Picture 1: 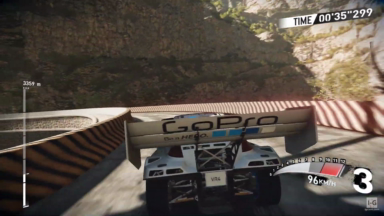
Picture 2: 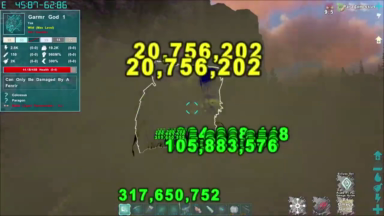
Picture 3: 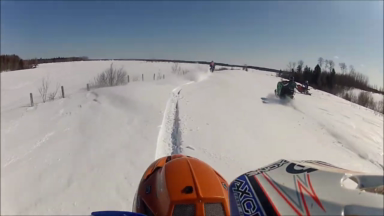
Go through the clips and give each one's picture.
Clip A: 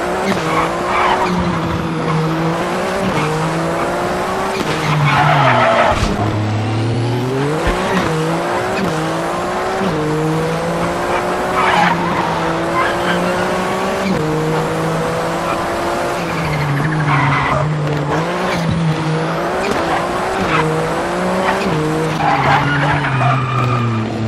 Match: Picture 1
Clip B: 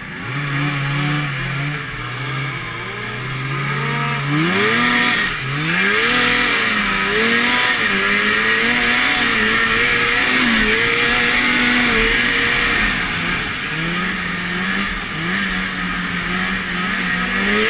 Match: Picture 3